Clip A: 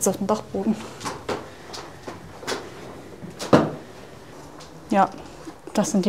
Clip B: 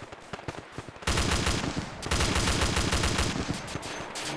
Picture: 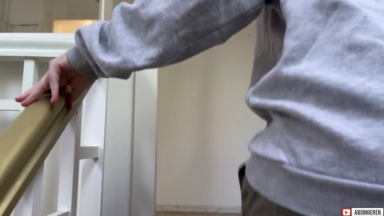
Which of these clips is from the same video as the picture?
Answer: A